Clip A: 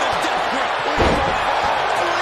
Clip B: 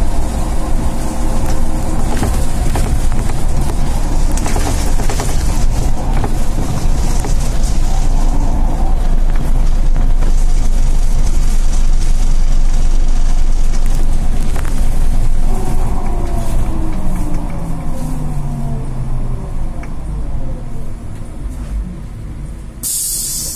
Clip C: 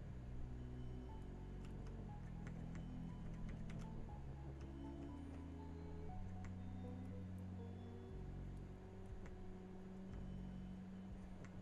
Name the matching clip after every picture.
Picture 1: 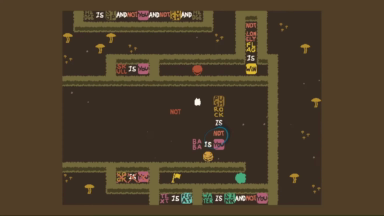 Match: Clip C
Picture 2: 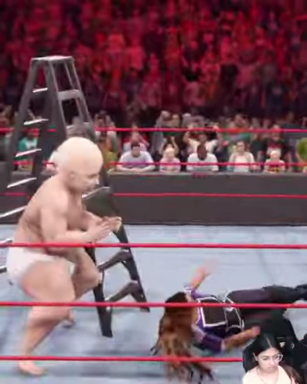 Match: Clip A